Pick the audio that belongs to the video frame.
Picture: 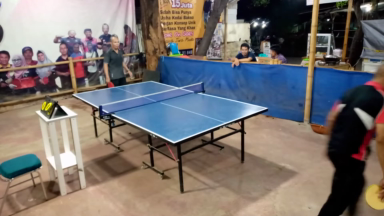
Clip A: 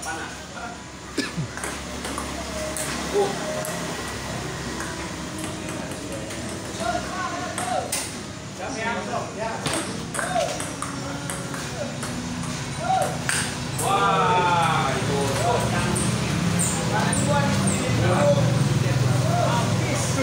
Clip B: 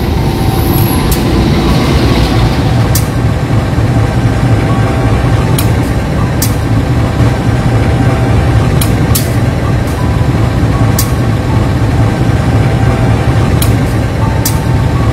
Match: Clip A